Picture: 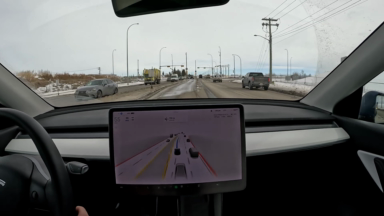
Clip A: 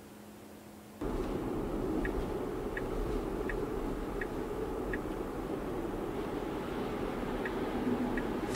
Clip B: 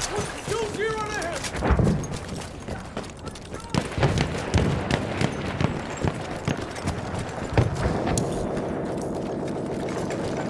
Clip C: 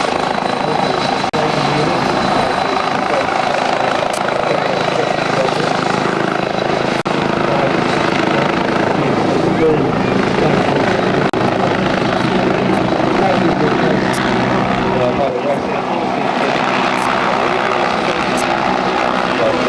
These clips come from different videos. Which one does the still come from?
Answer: A